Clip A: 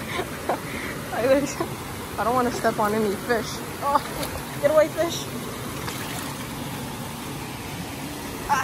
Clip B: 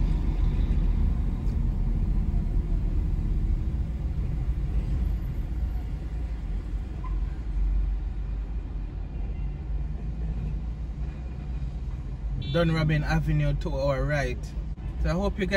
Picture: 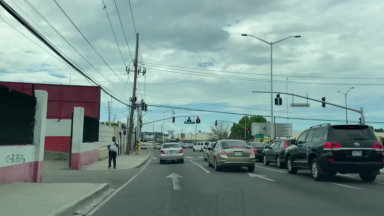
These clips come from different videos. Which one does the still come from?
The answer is B